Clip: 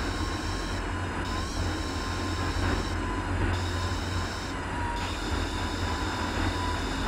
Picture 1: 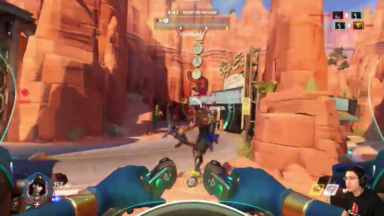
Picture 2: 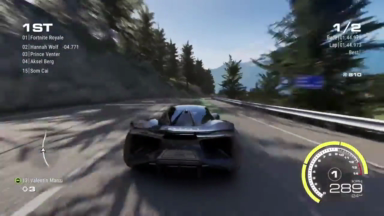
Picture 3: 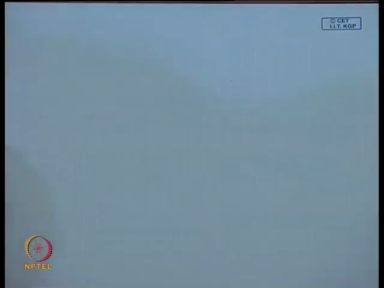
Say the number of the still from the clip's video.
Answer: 2